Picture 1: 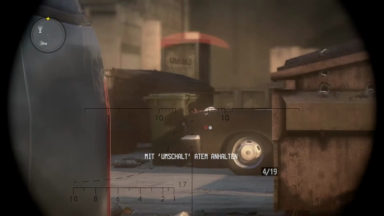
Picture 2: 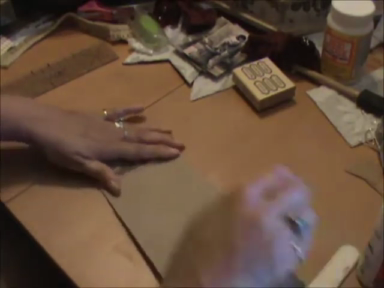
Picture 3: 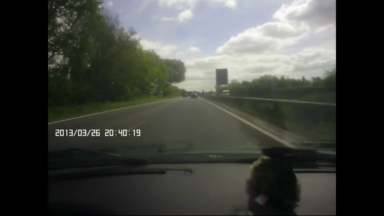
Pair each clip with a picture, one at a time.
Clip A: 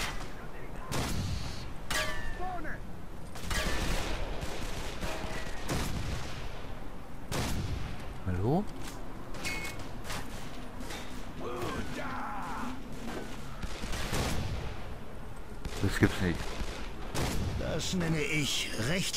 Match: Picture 1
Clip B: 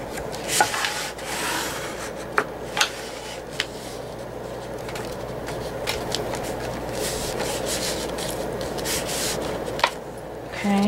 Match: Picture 2